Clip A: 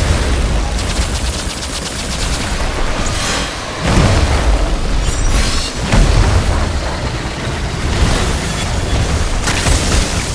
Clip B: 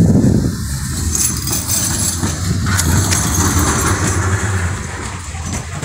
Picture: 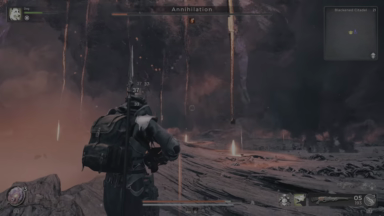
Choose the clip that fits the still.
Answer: A